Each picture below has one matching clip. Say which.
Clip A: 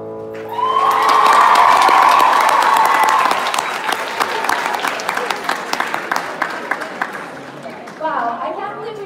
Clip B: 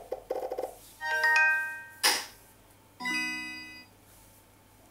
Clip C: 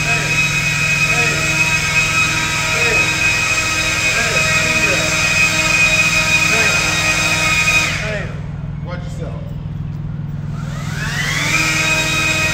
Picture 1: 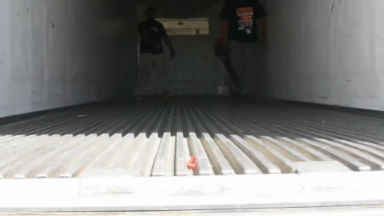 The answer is C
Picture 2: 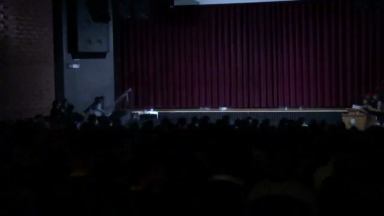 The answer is A